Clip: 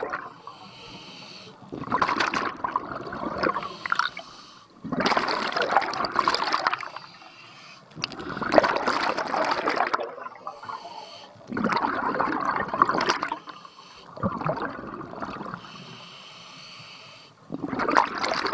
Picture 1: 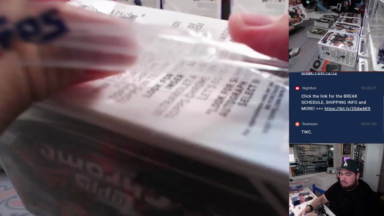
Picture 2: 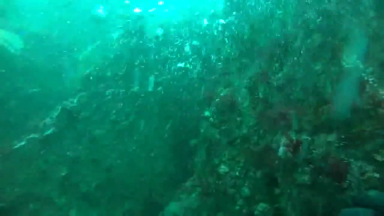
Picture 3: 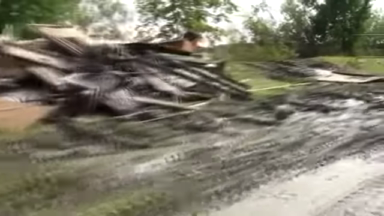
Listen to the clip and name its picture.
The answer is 2